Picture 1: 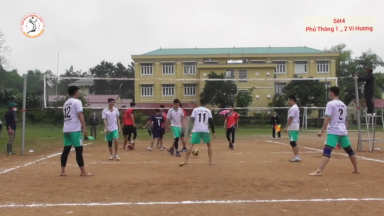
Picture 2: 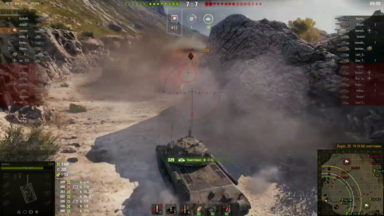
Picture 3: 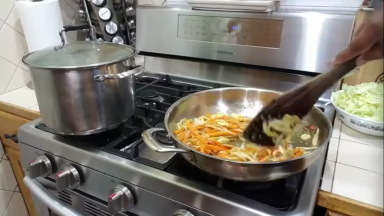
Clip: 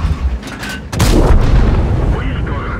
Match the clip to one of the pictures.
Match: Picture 2